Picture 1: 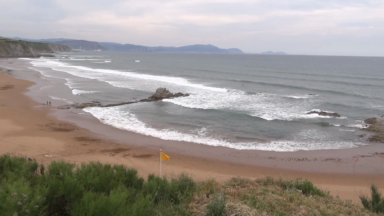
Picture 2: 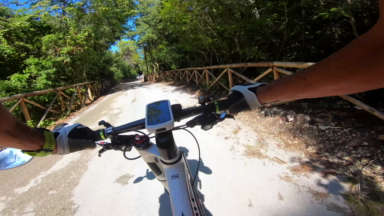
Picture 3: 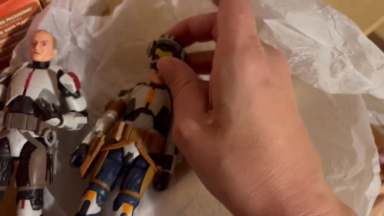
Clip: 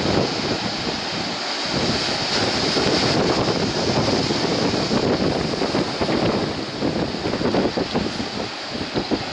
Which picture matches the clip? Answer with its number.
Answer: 1